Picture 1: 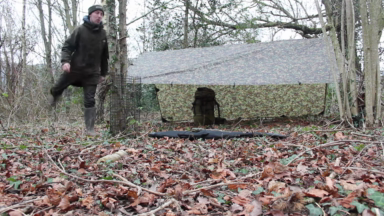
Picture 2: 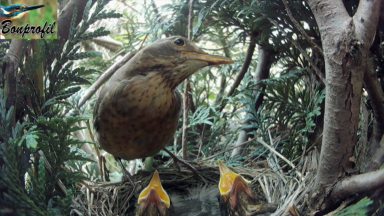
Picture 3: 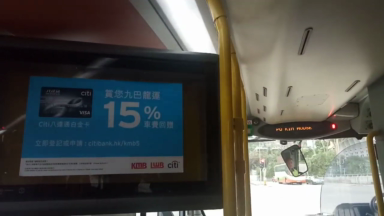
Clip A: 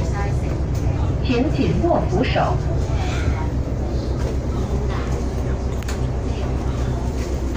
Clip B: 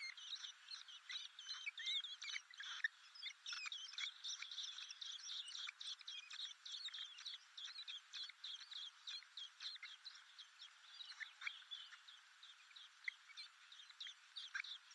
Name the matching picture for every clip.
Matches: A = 3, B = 2